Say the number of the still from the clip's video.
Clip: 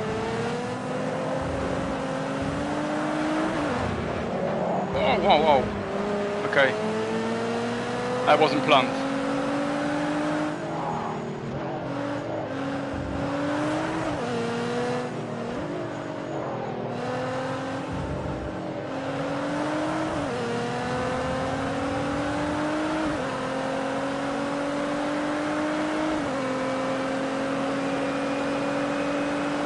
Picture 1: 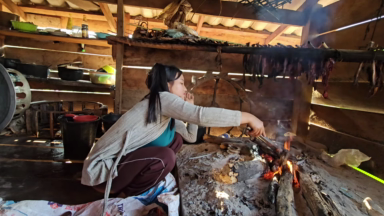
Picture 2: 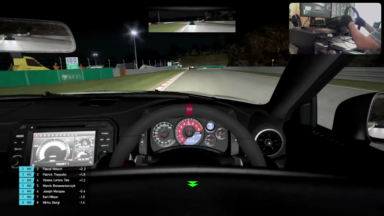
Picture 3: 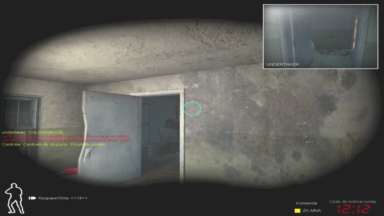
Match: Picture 2